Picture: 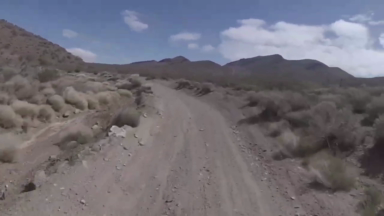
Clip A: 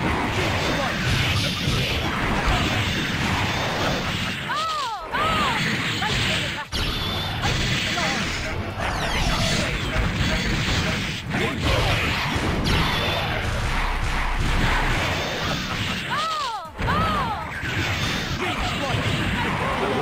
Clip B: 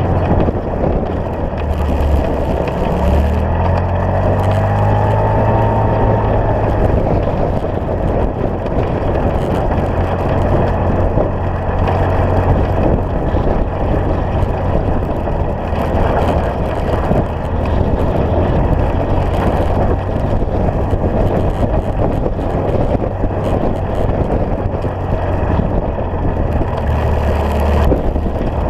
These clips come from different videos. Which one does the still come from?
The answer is B